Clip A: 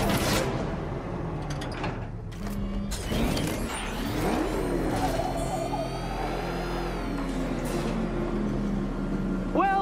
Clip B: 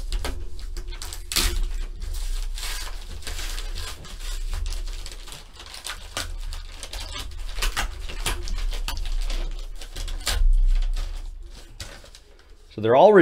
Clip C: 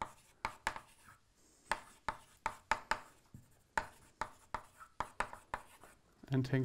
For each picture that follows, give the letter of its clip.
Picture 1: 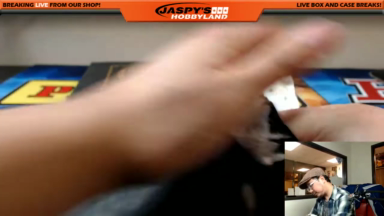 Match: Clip B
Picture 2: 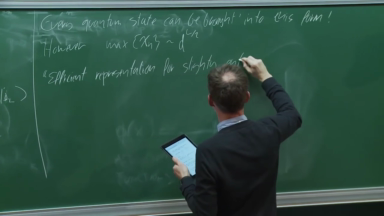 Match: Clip C